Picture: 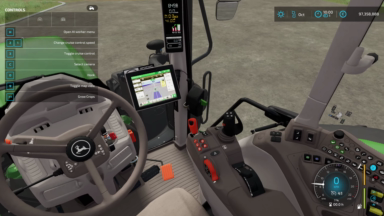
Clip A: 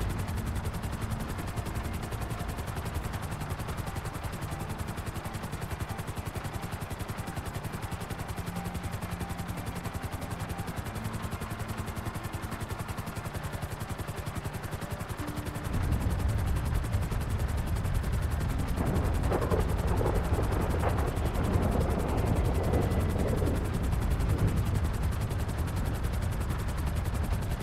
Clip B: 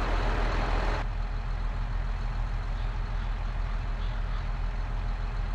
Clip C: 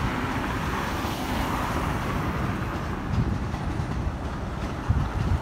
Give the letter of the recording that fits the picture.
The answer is B